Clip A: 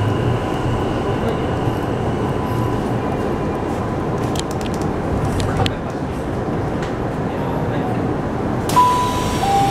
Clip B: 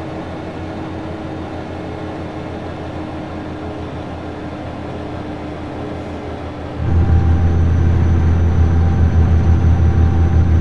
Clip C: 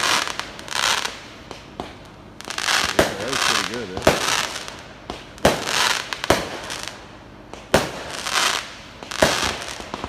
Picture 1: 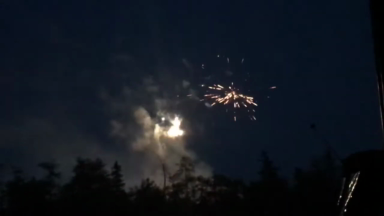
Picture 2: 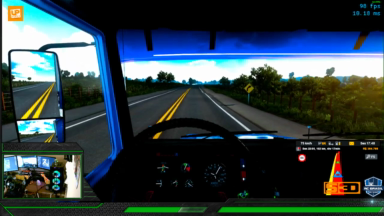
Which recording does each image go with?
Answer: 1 C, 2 B